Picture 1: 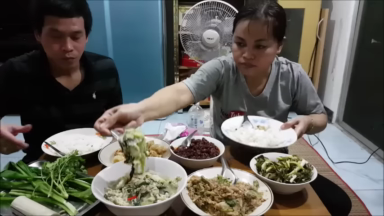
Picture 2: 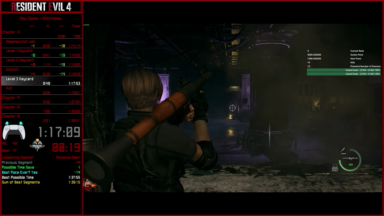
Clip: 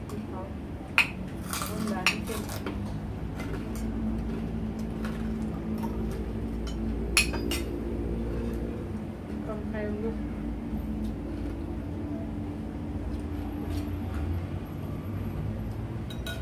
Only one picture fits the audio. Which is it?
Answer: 1